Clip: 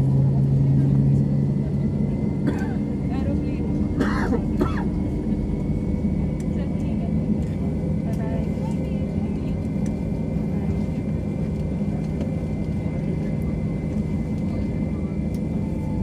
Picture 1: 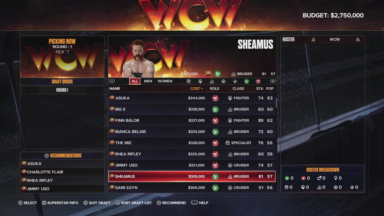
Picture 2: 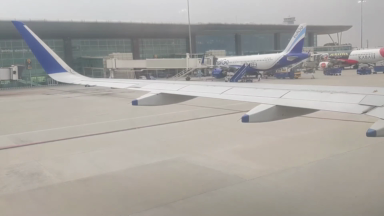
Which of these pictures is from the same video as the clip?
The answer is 2